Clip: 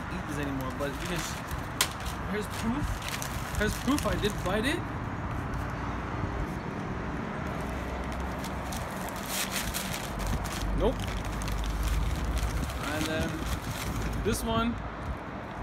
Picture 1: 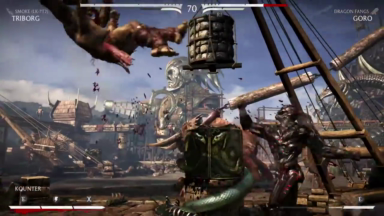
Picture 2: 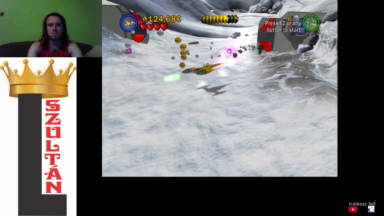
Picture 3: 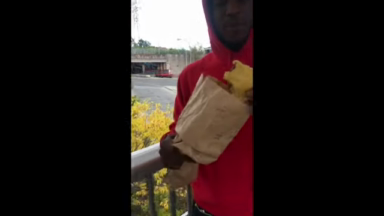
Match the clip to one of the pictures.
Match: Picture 3